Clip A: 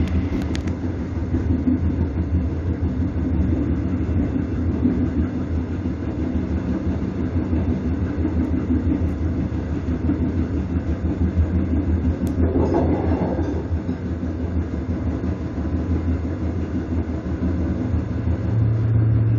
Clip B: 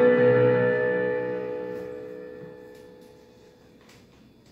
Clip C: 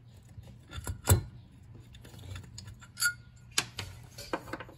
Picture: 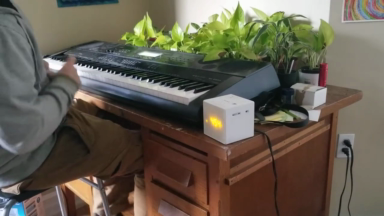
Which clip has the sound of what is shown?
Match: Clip B